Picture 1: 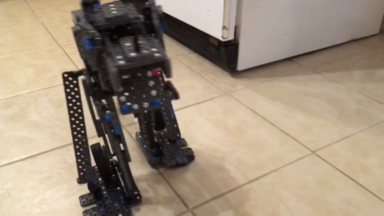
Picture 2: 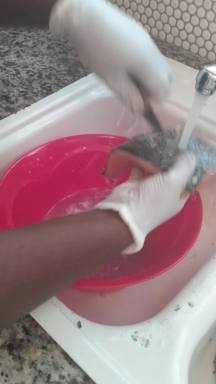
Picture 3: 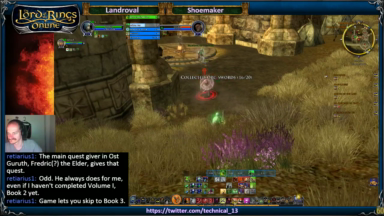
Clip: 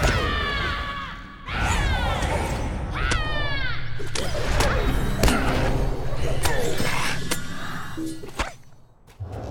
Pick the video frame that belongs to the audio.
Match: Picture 3